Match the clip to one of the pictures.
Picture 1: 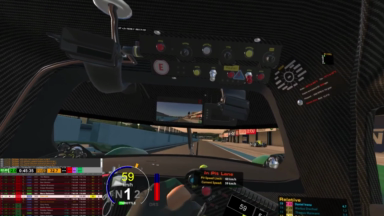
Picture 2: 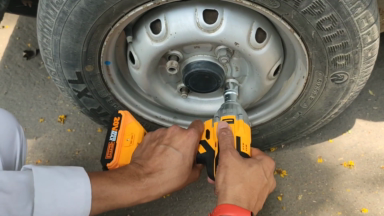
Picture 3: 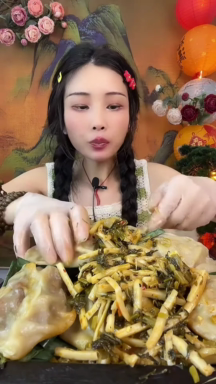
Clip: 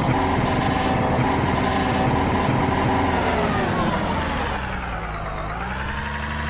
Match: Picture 1